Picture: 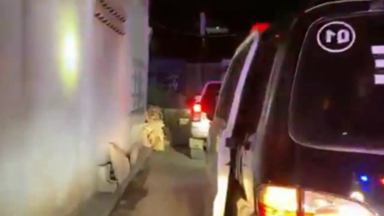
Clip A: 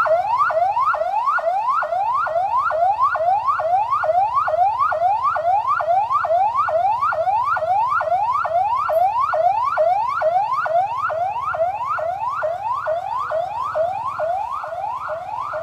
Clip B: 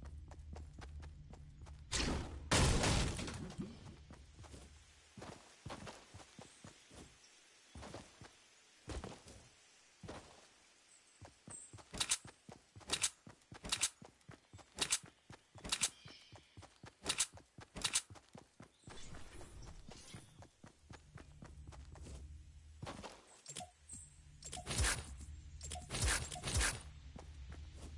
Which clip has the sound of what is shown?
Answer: A